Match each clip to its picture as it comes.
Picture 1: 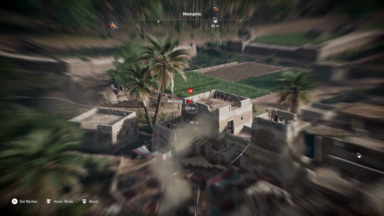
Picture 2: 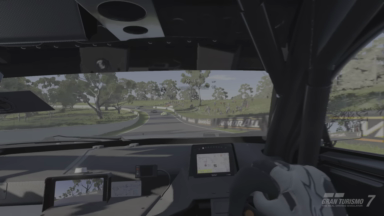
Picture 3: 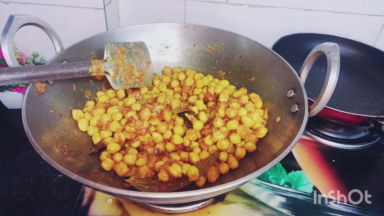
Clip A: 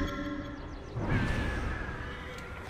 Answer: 1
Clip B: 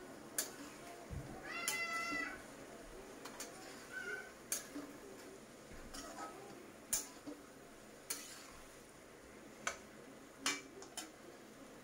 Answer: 3